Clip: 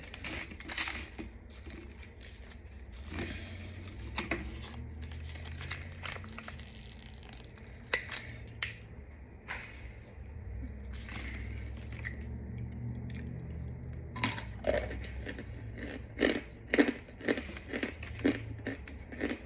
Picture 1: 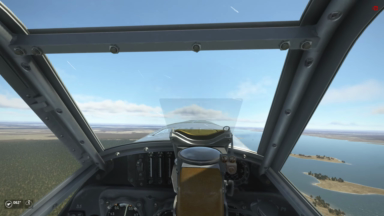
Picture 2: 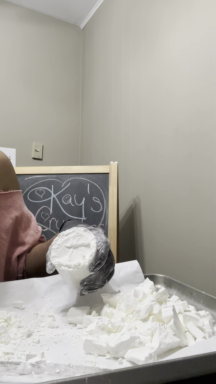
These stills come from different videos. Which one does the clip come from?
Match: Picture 2